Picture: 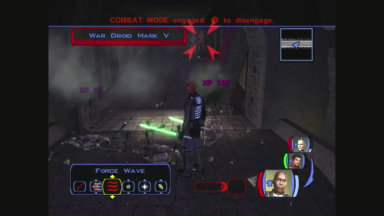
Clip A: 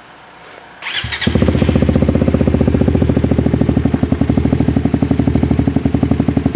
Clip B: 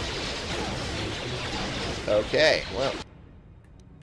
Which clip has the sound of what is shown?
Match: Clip B